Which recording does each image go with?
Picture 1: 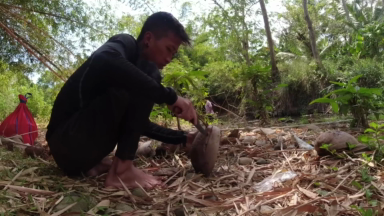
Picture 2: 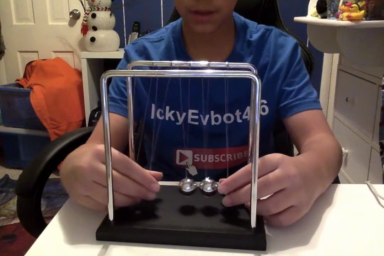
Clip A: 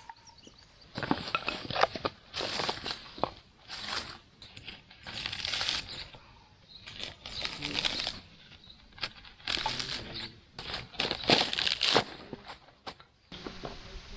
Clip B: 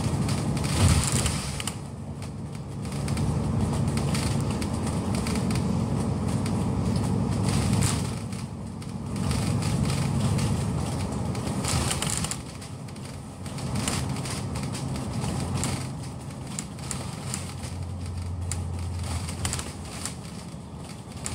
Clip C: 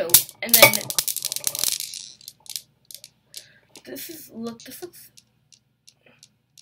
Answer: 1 A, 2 C